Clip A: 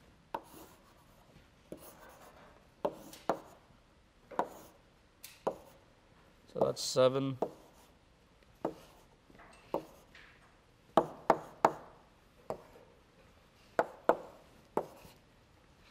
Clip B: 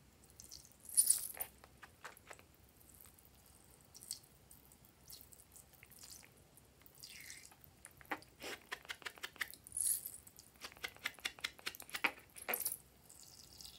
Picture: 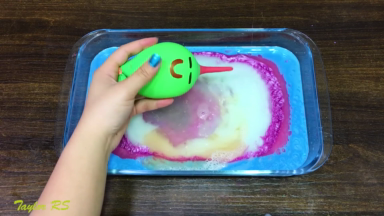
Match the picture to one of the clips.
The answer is B